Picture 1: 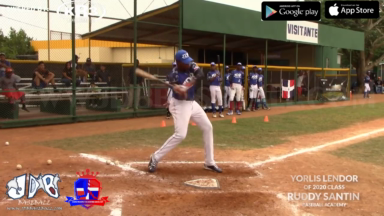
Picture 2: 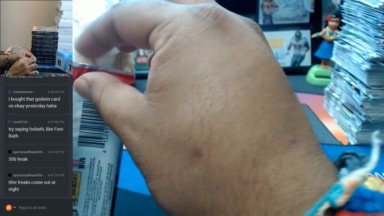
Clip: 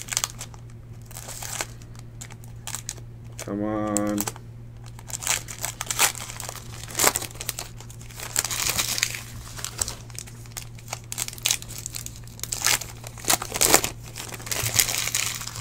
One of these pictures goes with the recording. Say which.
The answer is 2